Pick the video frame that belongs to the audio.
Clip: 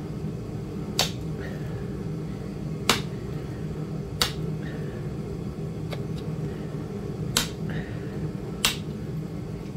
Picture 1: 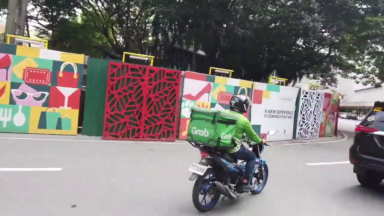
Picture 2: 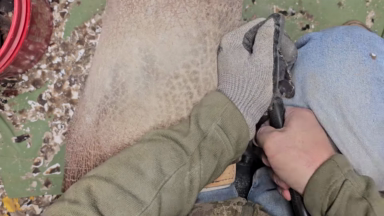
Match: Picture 2